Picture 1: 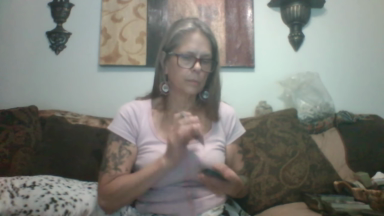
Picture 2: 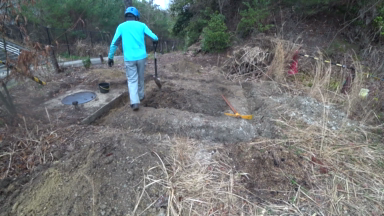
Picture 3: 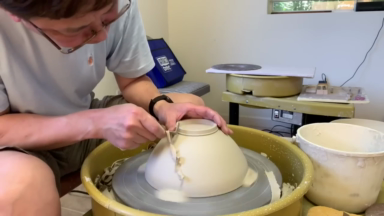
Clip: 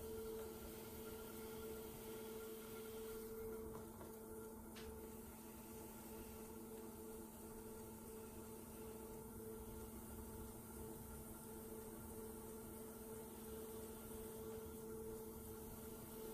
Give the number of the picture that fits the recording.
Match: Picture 3